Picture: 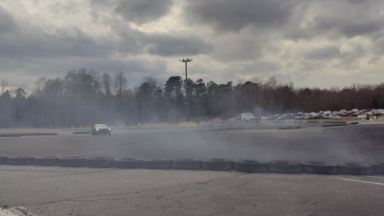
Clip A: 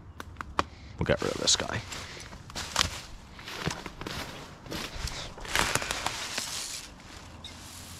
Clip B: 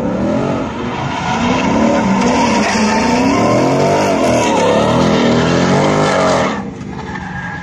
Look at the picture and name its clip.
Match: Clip B